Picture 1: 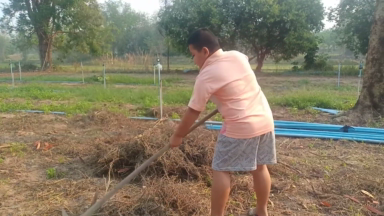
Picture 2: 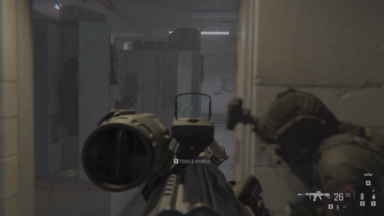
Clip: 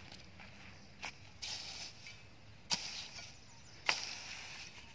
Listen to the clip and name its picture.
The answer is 1